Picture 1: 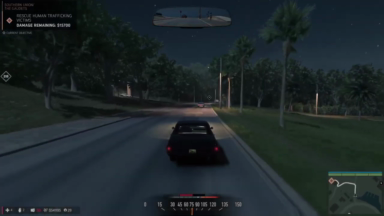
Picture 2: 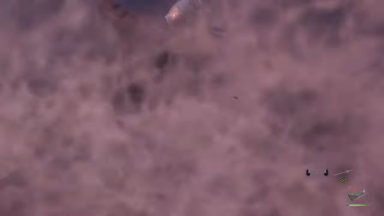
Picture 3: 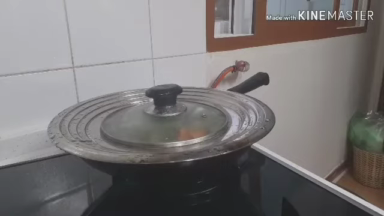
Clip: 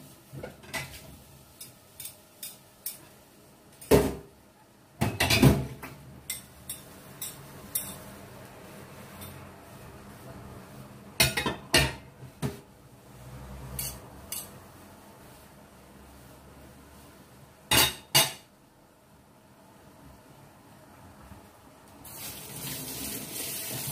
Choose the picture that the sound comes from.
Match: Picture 3